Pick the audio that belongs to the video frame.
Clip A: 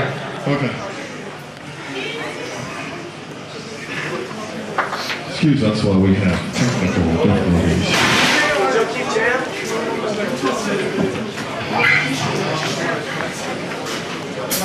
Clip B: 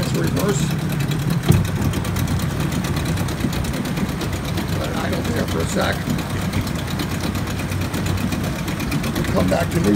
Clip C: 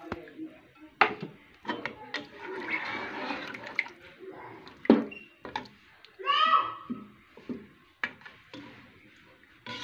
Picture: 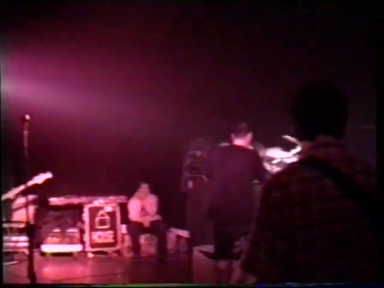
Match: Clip A